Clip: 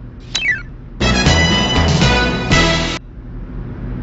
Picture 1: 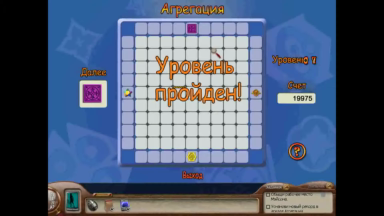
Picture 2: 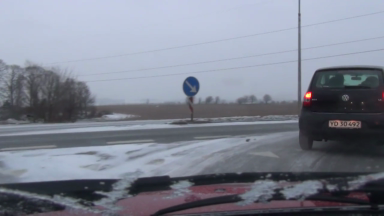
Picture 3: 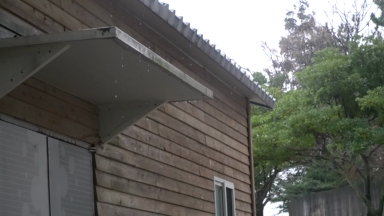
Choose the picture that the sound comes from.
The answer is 1